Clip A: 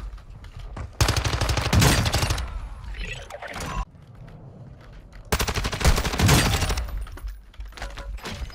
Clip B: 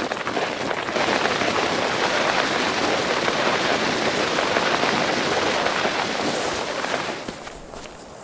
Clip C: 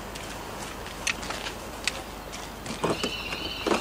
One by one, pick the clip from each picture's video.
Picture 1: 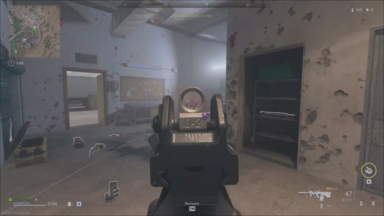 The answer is A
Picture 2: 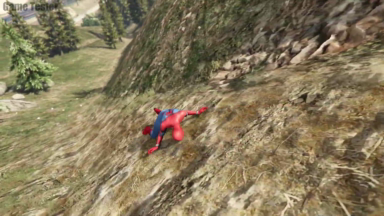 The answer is B